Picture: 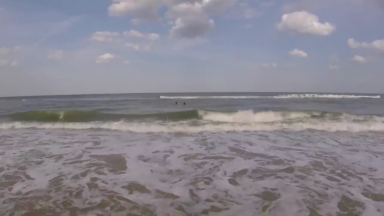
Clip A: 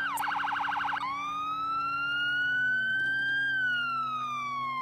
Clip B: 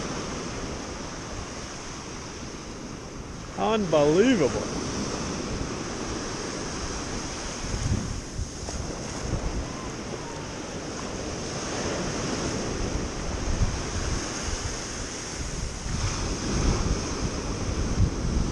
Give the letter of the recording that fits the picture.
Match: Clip B